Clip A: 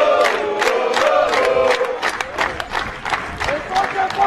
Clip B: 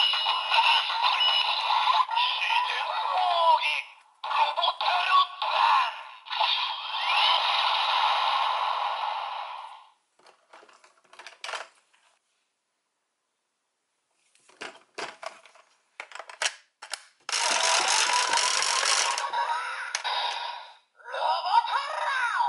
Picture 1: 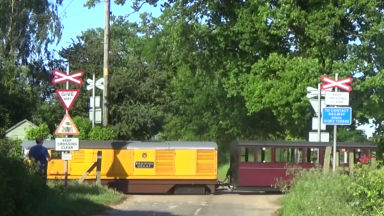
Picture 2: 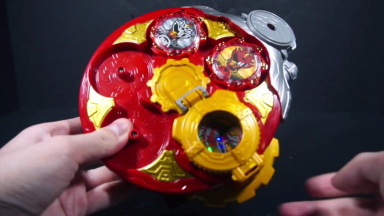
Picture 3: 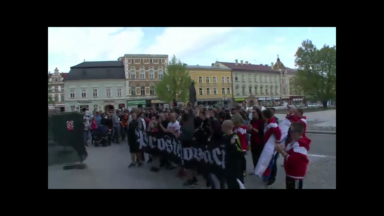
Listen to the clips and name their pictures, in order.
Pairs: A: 3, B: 2